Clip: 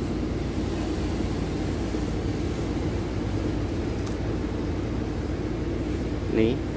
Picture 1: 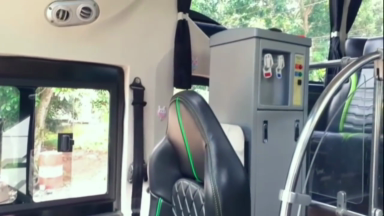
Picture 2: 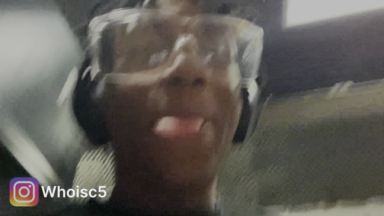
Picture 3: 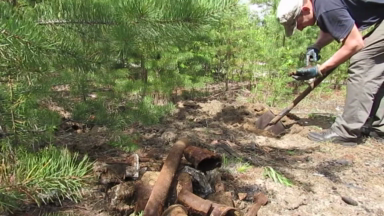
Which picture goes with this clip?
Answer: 1